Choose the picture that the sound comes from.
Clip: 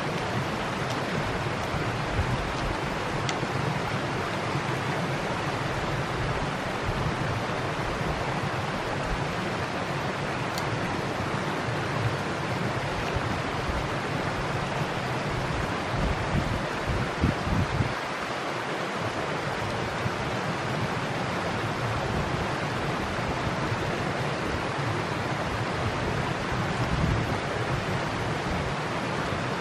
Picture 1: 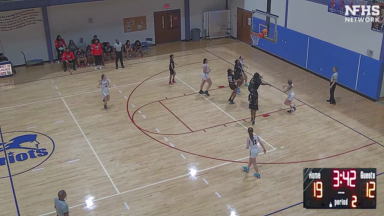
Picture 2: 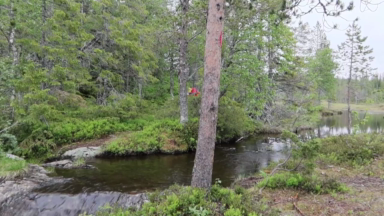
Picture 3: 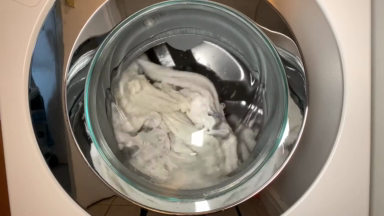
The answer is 2